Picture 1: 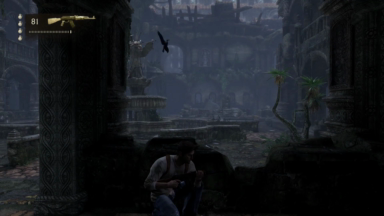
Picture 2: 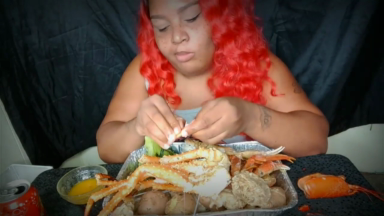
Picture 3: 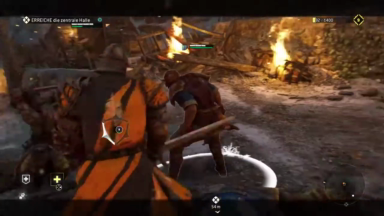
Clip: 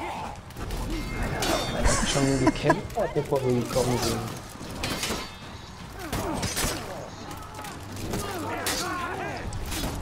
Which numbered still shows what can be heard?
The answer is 3